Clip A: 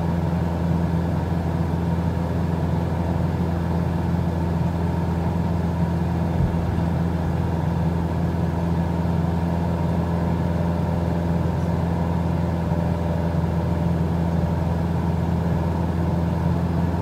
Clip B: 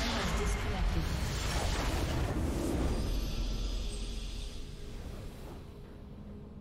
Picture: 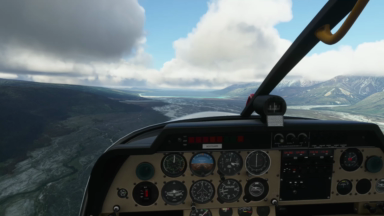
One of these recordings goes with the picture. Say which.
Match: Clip A